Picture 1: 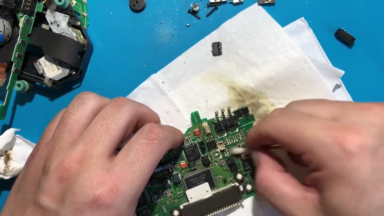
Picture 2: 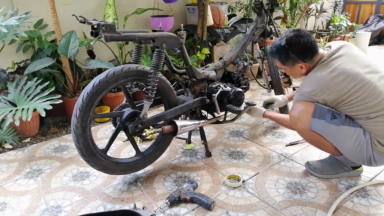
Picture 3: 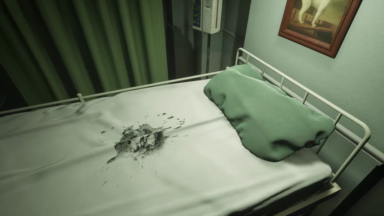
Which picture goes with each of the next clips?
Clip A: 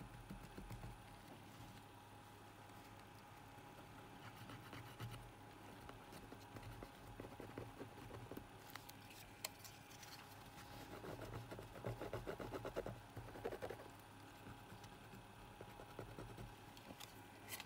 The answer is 1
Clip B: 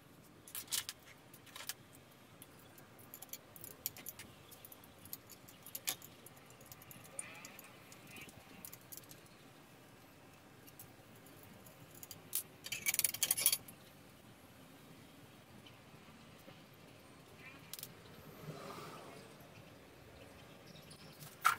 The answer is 2